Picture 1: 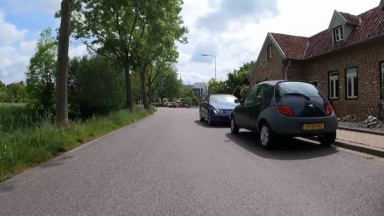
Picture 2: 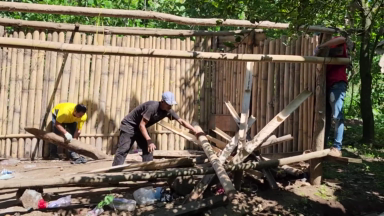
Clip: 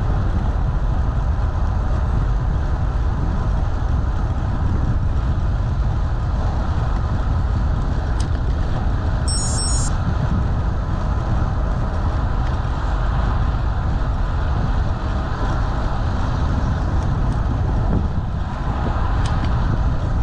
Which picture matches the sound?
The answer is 1